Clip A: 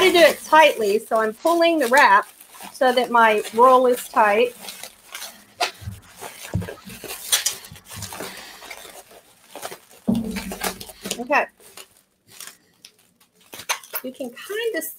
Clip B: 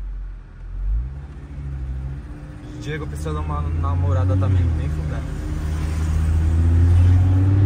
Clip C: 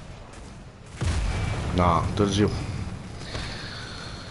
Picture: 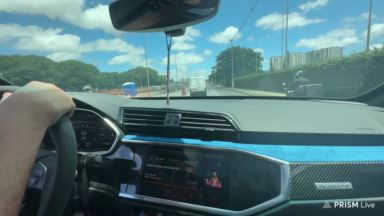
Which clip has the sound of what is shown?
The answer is B